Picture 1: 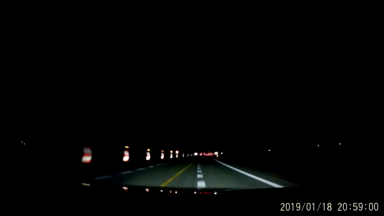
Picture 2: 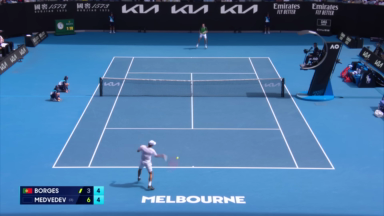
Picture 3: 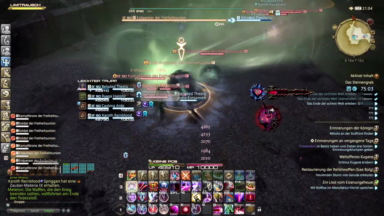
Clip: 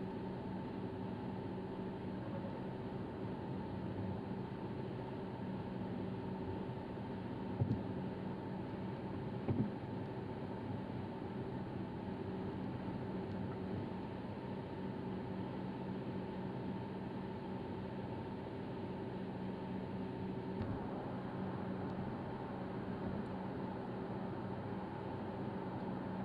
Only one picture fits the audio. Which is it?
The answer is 1